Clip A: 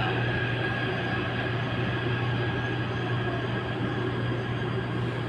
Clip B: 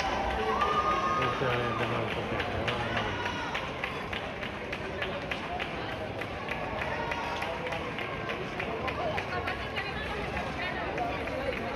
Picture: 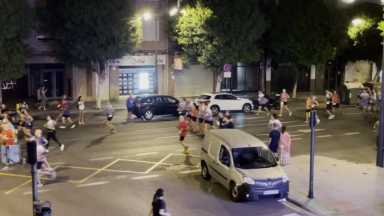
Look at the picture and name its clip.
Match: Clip B